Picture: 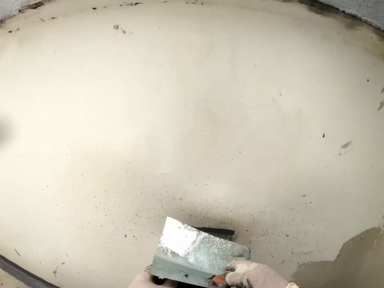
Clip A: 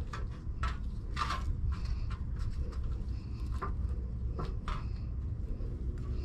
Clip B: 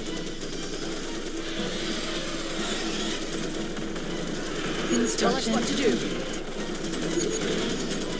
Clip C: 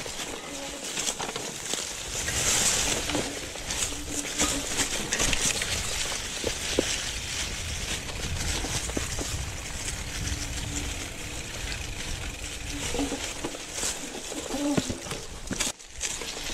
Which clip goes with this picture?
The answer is A